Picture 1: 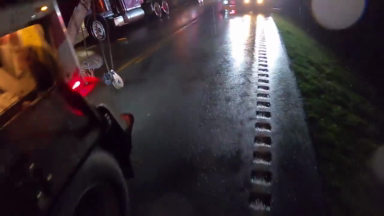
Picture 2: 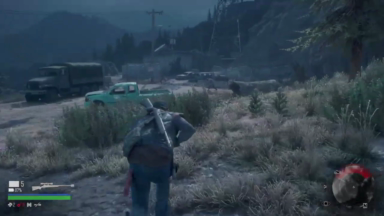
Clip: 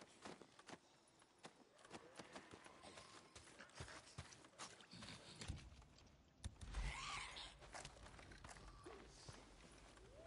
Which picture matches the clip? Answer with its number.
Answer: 2